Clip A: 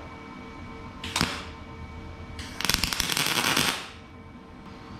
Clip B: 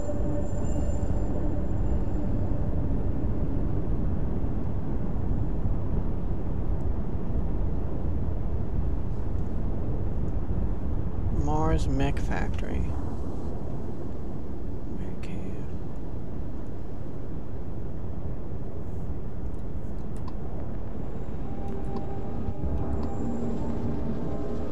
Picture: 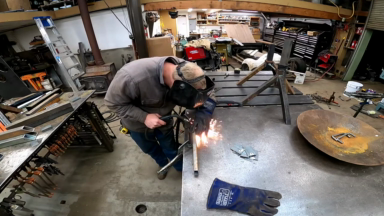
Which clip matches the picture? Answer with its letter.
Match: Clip A